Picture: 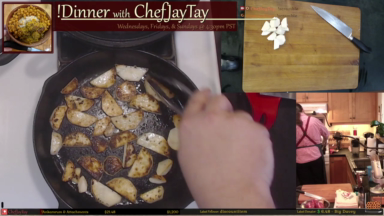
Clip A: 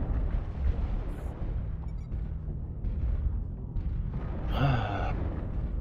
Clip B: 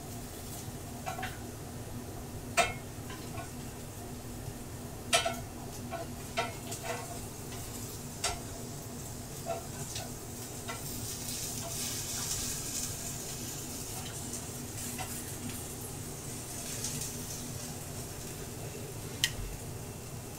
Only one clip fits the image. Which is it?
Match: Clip B